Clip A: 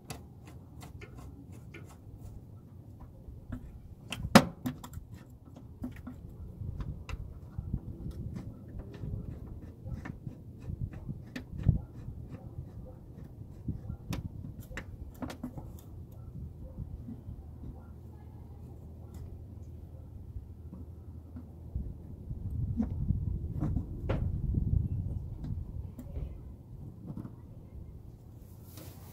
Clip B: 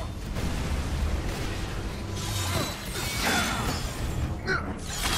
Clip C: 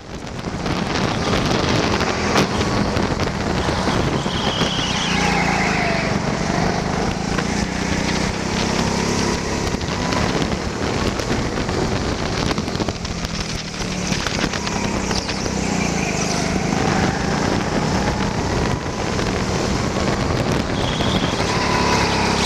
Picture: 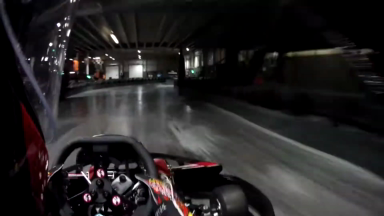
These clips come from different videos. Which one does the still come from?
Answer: C